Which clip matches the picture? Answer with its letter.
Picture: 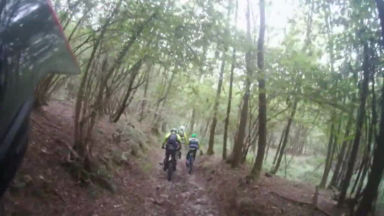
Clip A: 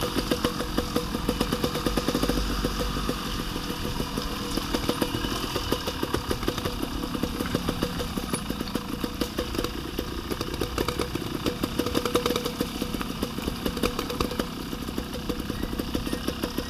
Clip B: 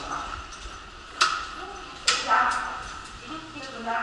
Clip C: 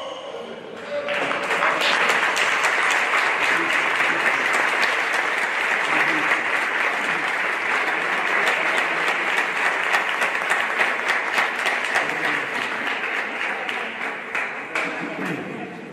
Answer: A